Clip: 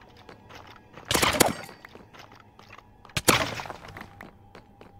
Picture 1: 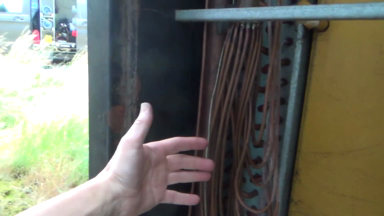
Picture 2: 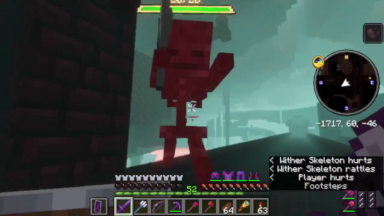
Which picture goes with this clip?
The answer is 2